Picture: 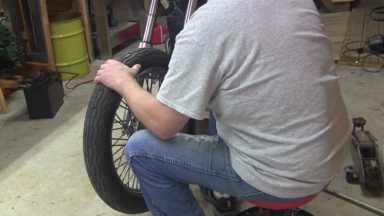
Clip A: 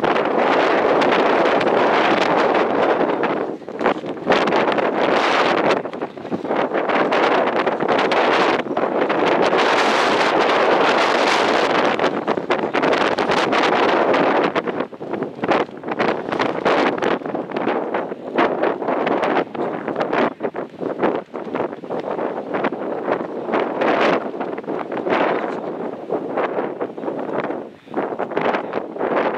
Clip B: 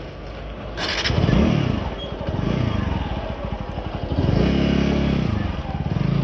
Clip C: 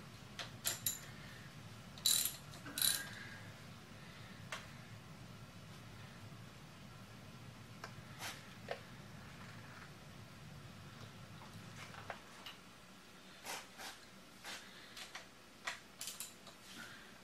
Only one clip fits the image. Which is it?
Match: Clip C